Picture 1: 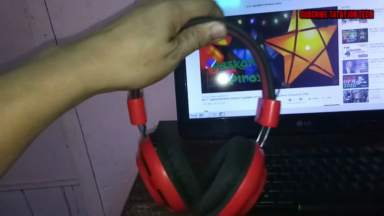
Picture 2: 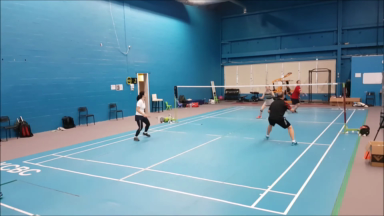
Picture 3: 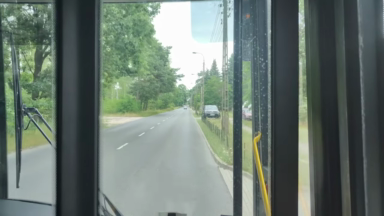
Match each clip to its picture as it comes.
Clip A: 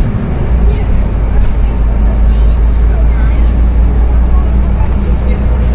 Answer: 3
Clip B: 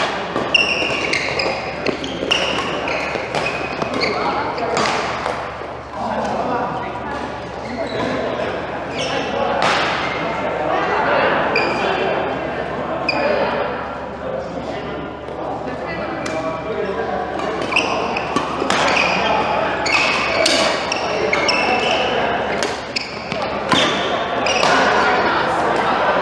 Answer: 2